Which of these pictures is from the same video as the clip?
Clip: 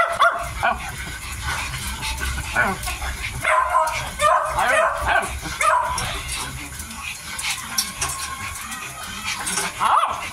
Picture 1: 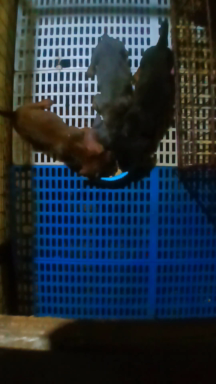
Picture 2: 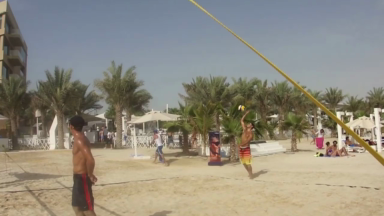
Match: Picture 1